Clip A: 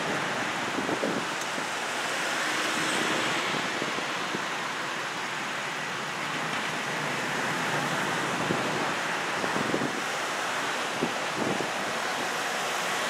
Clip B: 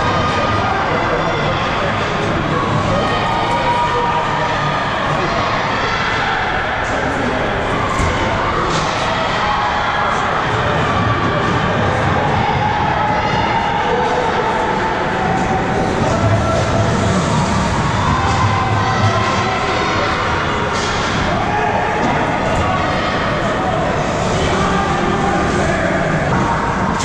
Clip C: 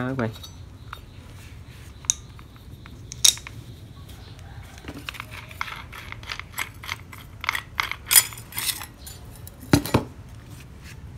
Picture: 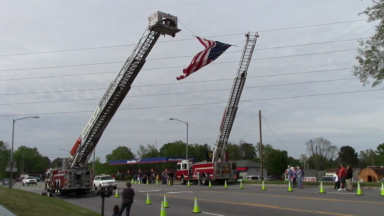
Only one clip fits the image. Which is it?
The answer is A